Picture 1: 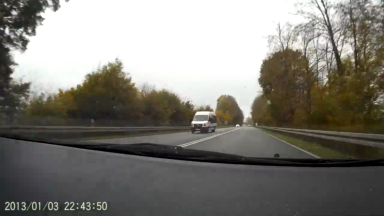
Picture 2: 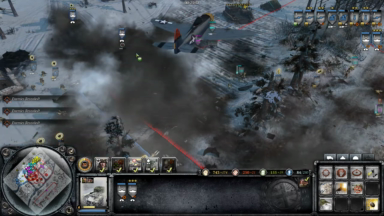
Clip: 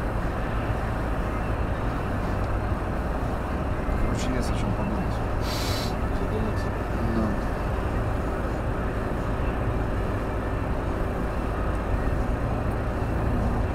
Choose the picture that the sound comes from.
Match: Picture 1